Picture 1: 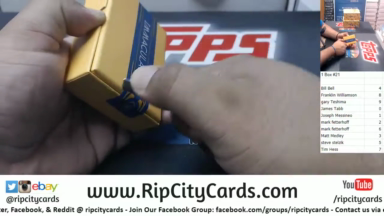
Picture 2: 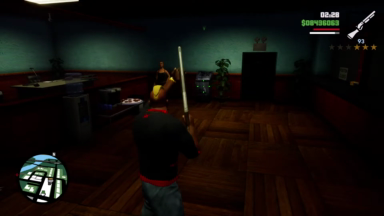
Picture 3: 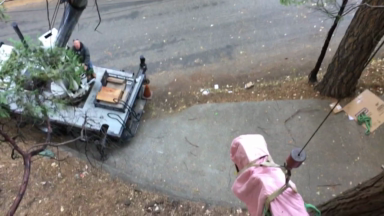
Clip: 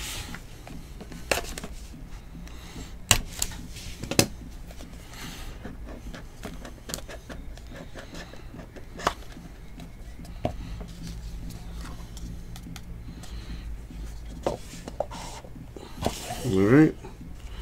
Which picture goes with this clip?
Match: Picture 1